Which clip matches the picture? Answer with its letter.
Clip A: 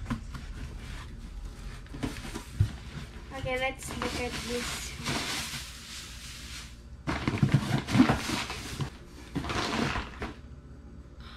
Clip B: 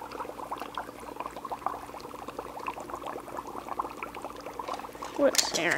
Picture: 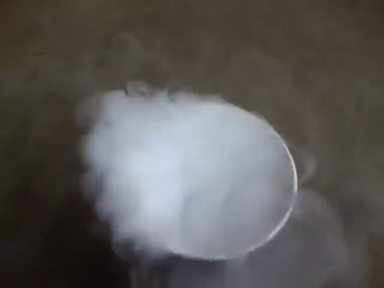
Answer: B